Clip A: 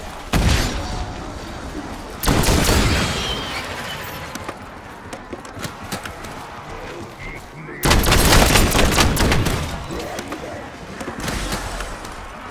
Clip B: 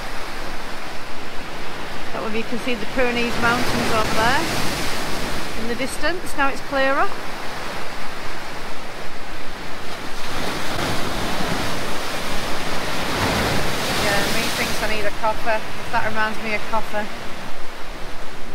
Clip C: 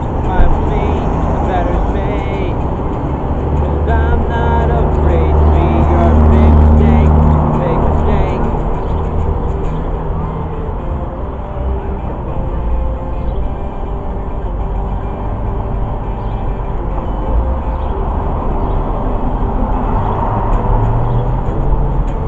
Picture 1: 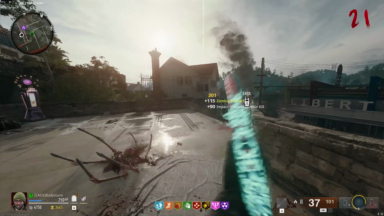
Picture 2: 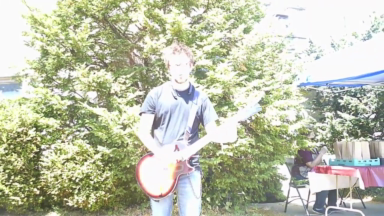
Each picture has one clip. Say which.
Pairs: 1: A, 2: C